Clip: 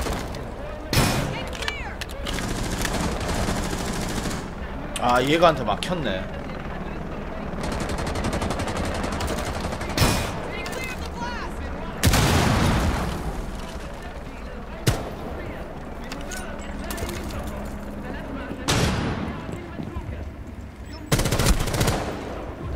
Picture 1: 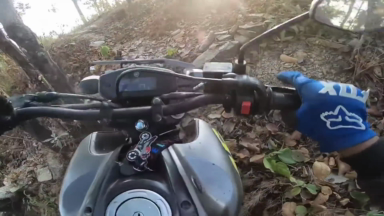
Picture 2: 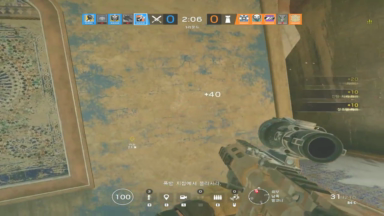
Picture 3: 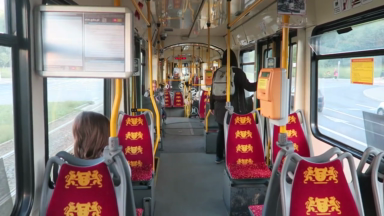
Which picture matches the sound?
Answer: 2